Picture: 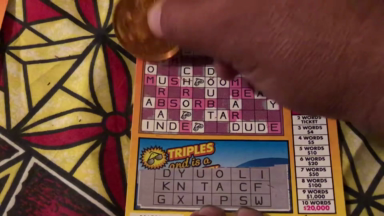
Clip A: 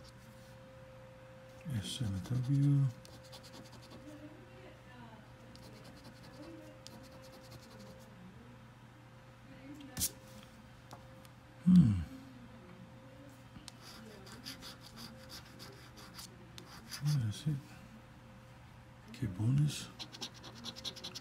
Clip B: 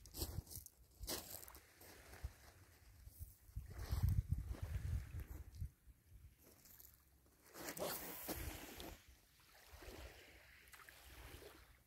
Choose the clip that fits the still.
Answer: A